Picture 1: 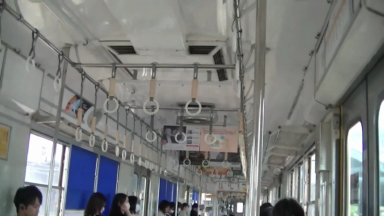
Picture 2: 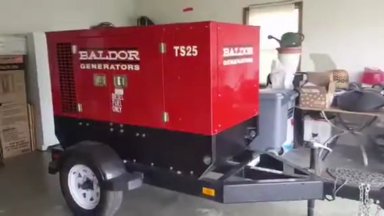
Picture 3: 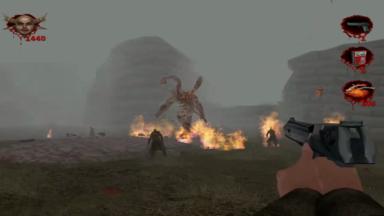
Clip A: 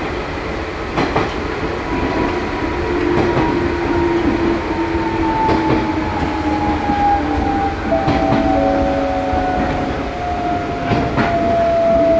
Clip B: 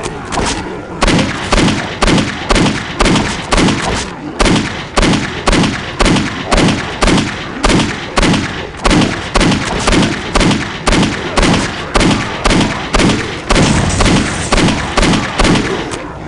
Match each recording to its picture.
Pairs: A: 1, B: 3